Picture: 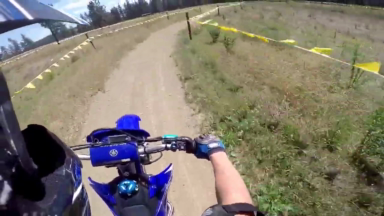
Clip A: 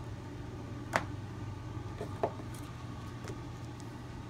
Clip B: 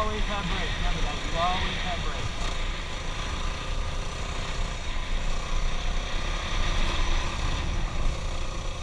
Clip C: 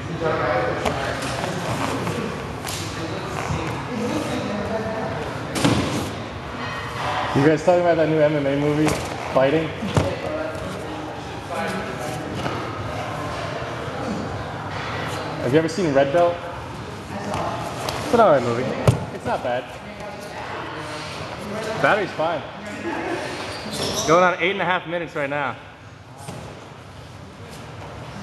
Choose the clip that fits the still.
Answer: B